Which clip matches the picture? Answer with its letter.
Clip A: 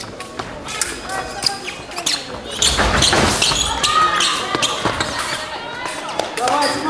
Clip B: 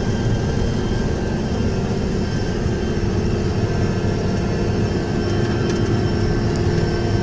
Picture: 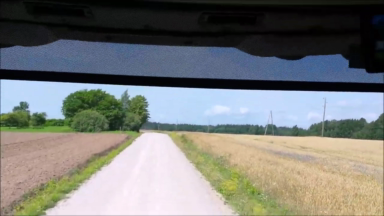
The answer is B